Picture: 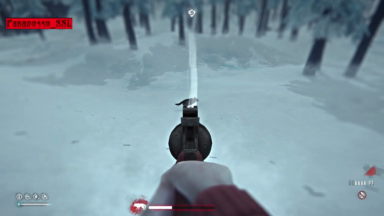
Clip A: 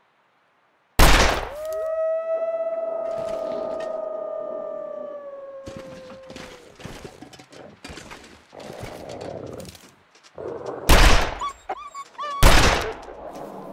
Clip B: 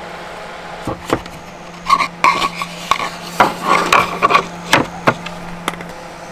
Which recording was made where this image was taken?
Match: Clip A